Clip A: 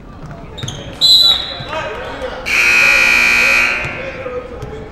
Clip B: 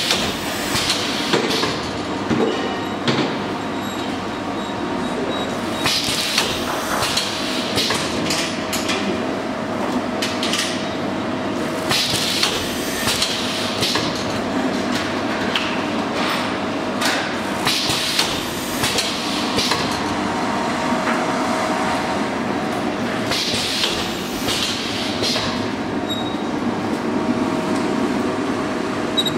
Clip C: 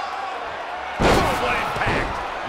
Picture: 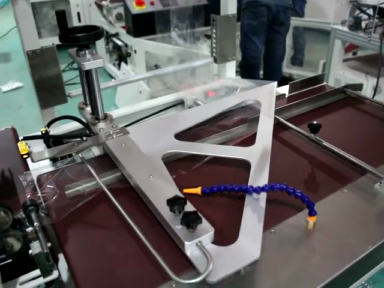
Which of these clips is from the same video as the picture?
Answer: B